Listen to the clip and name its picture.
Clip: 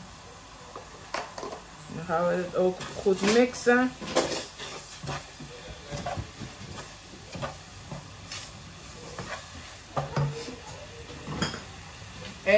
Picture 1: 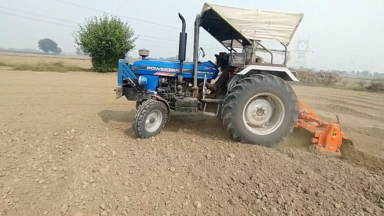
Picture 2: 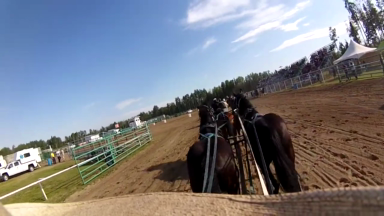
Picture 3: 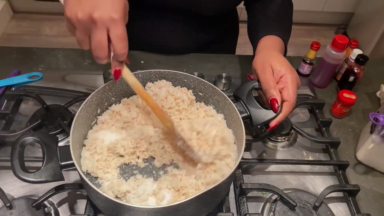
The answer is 3